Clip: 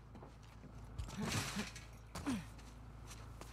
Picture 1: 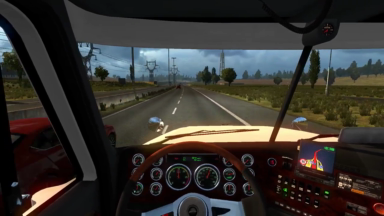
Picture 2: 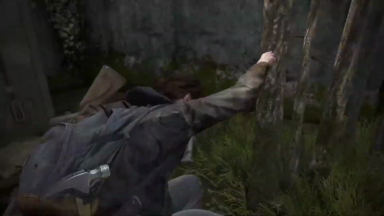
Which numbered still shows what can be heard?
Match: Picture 2